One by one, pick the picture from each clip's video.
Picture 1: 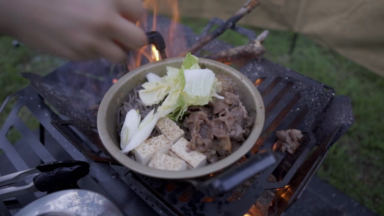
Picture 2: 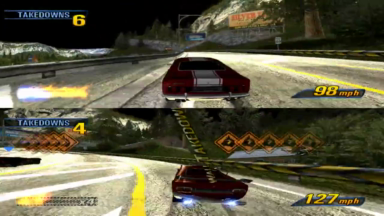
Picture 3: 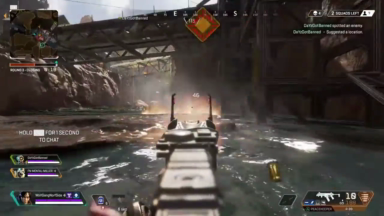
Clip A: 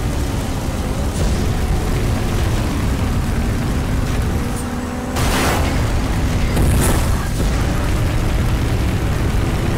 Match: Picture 2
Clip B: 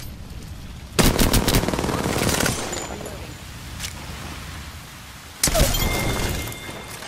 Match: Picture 3